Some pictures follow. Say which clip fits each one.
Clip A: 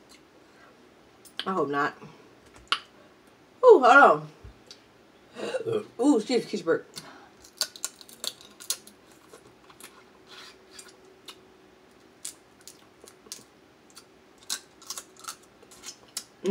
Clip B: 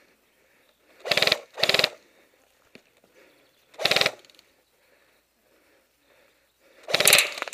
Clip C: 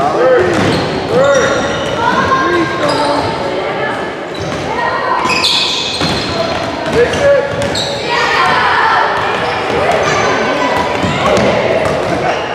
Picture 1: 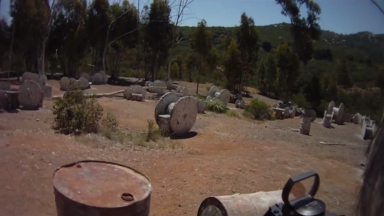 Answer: B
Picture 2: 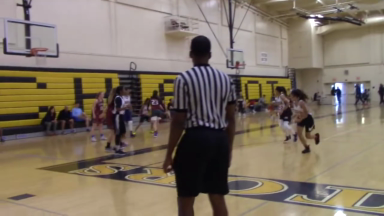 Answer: C